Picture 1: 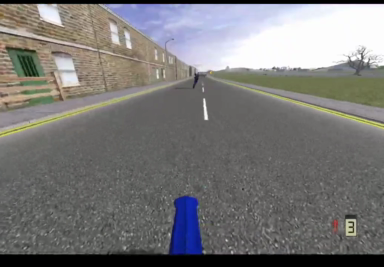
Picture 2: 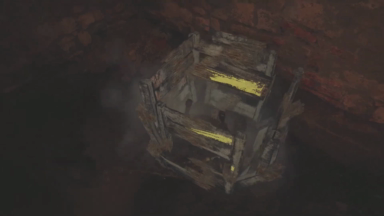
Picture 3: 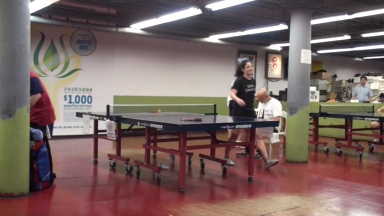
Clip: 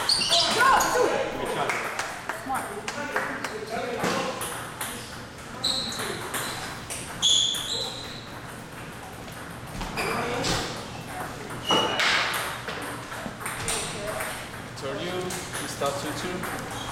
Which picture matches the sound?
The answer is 3